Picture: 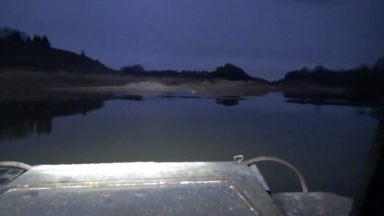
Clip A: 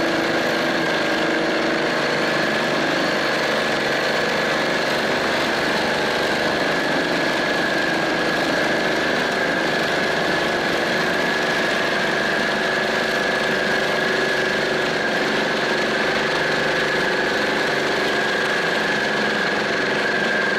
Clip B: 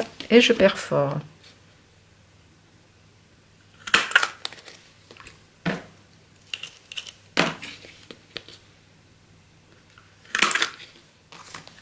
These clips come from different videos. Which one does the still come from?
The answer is A